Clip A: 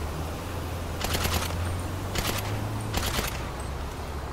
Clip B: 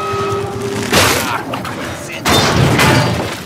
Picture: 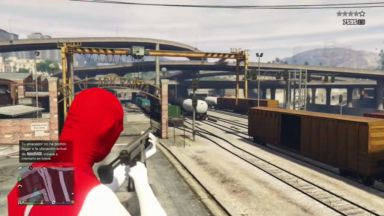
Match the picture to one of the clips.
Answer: A